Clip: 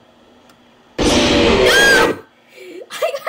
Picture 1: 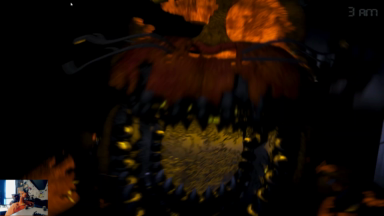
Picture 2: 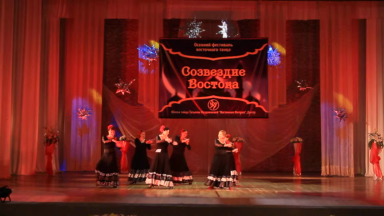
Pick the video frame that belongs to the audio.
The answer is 1